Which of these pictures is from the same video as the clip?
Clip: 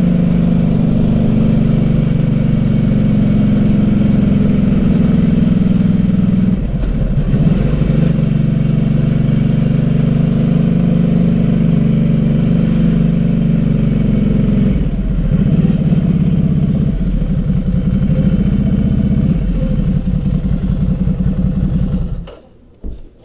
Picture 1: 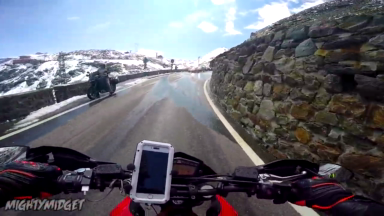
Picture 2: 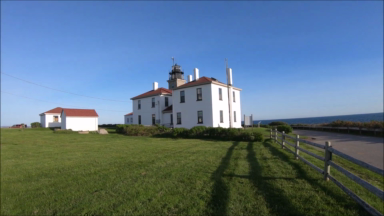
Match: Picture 1